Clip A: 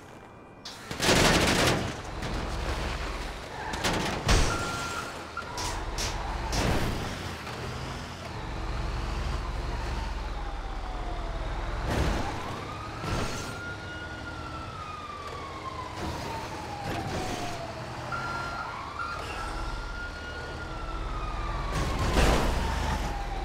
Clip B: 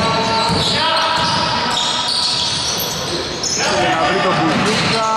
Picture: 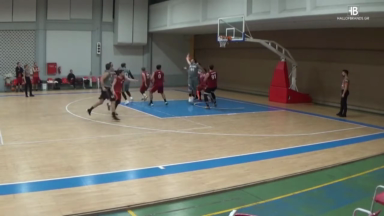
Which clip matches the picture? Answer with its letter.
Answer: B